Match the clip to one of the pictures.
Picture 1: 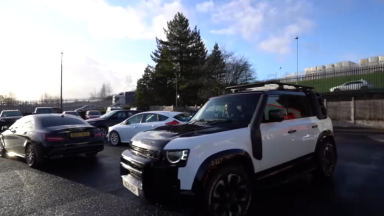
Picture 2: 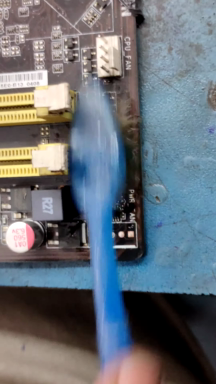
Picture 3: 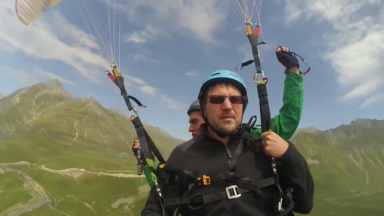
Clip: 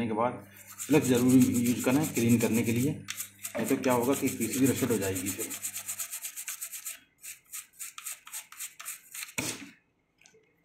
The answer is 2